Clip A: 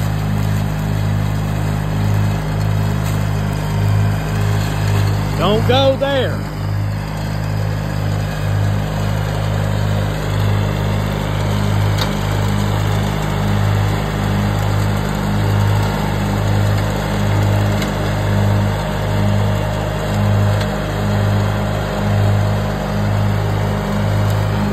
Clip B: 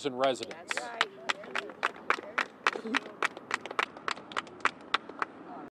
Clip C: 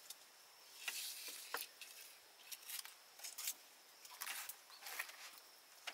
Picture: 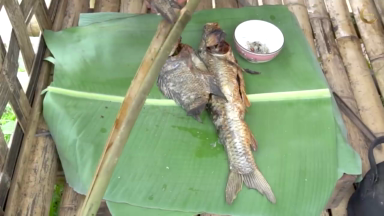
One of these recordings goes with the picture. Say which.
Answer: C